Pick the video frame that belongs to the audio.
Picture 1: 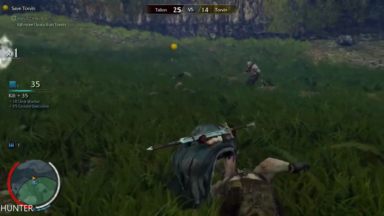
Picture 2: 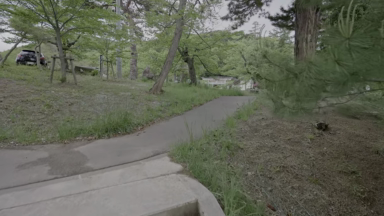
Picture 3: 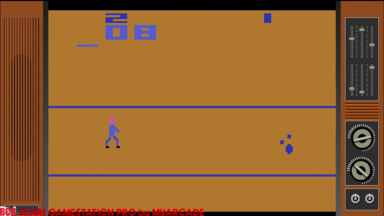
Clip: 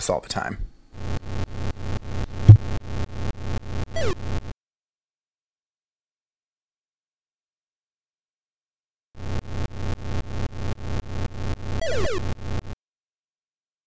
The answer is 3